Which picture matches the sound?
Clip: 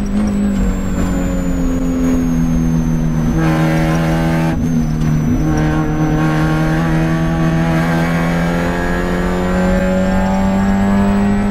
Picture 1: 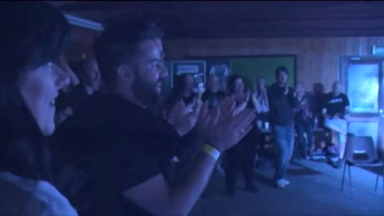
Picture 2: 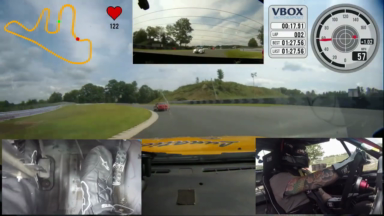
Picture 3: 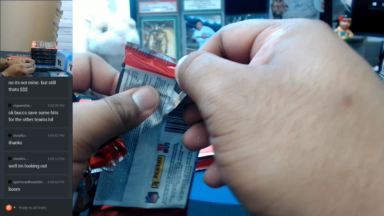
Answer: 2